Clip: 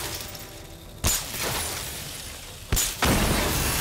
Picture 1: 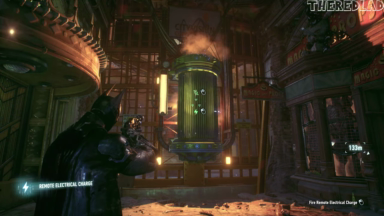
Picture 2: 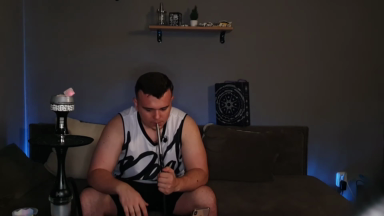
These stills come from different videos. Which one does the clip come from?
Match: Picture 1